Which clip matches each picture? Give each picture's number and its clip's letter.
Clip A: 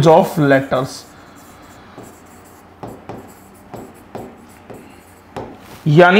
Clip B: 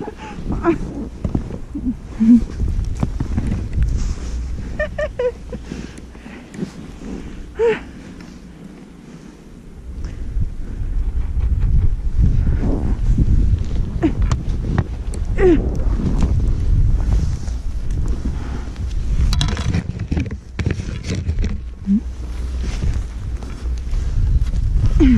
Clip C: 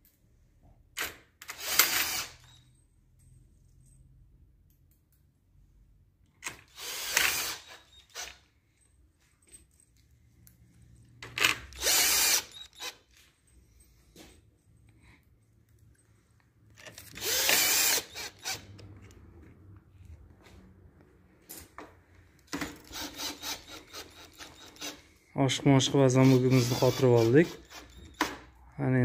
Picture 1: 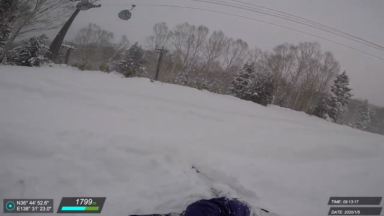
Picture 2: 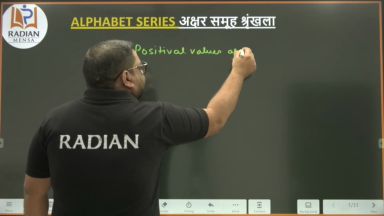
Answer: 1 B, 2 A